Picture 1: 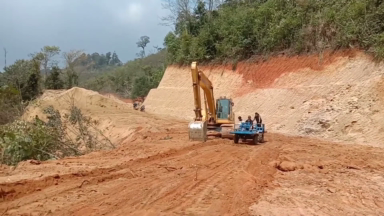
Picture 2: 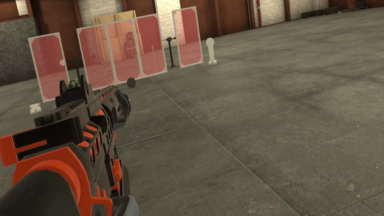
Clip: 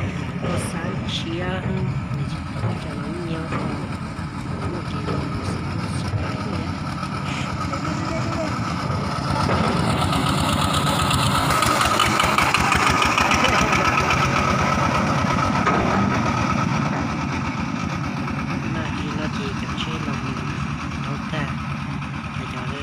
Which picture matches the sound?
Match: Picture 1